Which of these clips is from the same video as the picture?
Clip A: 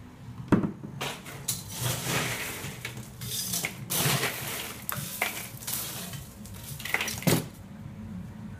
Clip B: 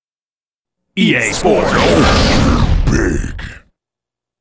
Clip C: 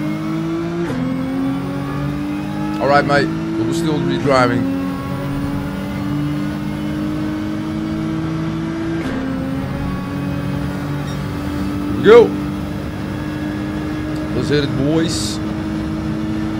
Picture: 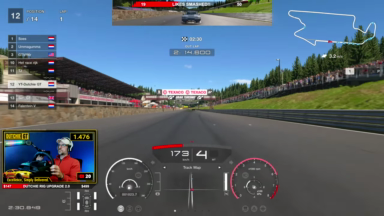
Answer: C